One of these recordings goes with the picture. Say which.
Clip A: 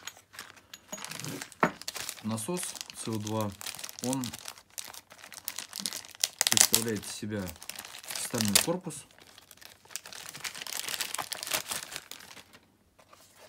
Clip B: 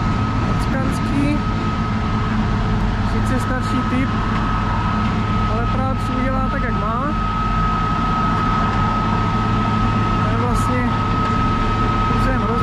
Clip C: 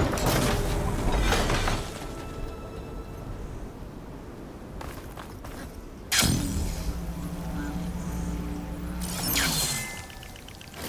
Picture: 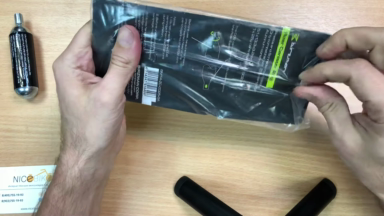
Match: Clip A